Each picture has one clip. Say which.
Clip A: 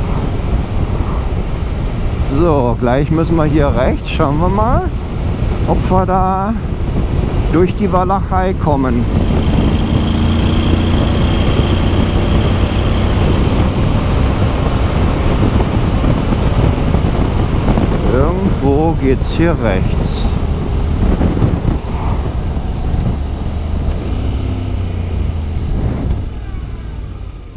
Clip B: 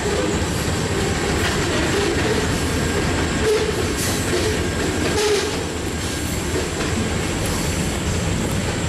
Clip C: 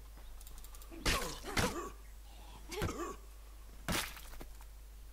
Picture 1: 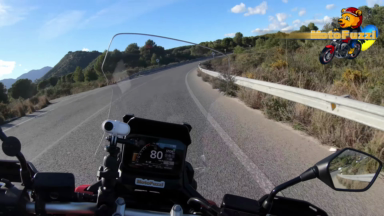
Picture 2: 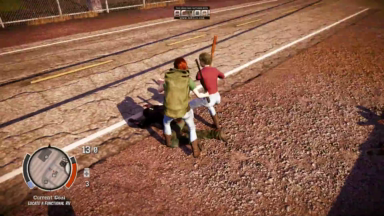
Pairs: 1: A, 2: C